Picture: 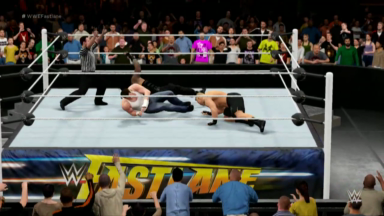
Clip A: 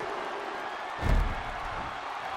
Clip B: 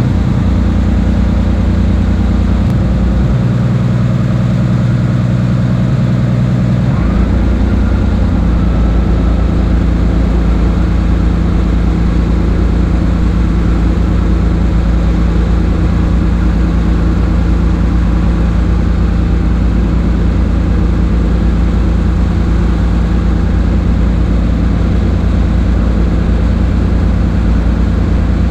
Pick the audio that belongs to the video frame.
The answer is A